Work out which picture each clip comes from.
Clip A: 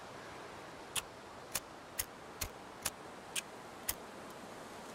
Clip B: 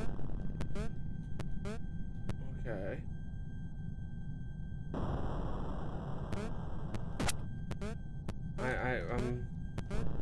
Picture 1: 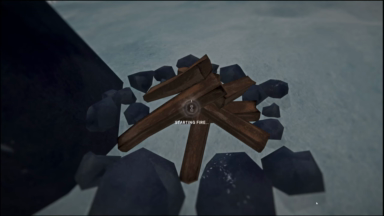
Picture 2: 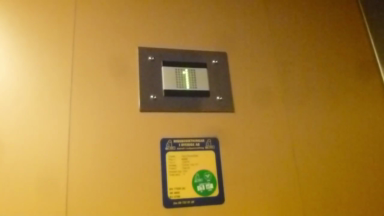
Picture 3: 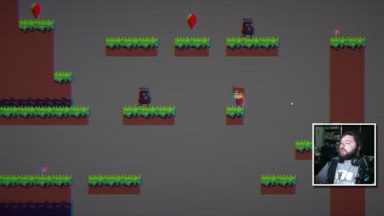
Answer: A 1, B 3